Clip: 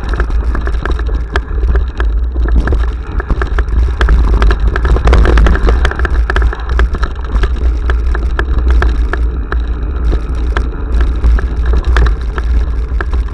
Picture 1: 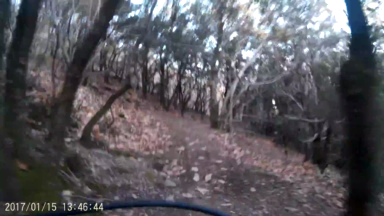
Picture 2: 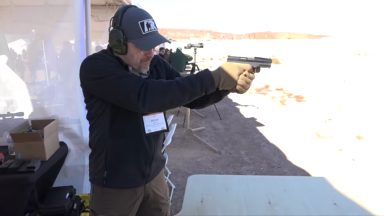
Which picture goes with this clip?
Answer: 1